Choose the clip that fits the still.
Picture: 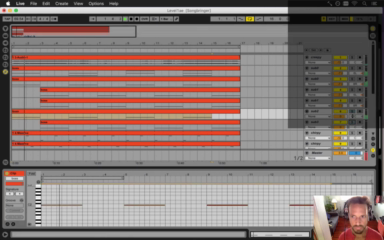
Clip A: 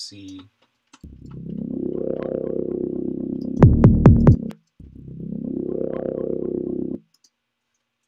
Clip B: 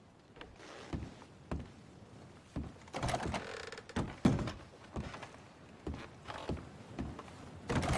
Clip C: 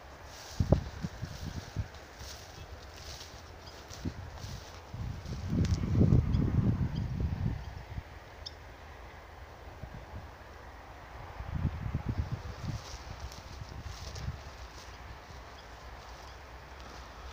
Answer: A